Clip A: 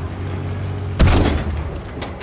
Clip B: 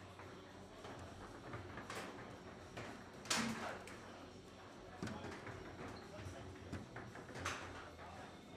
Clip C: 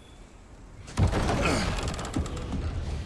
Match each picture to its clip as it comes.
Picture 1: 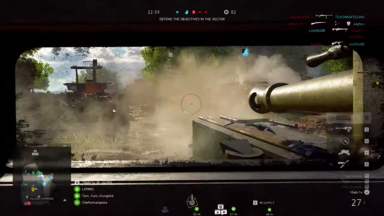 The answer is A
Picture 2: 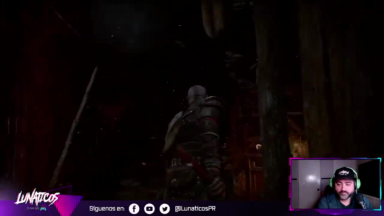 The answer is C